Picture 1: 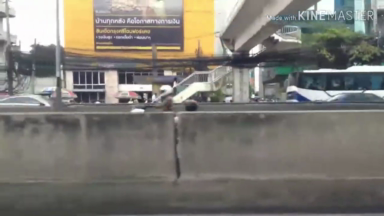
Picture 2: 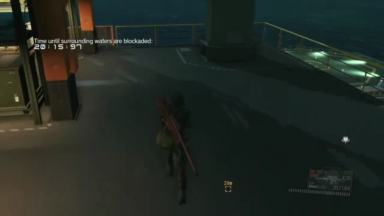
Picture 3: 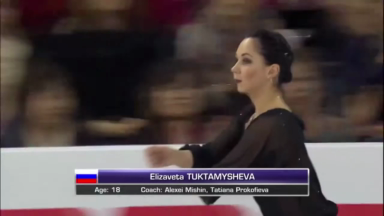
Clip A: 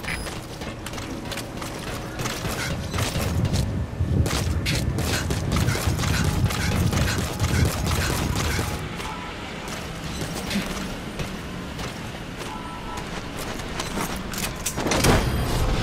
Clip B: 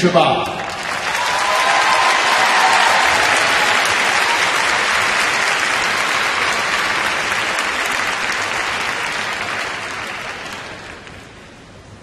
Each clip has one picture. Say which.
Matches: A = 2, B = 3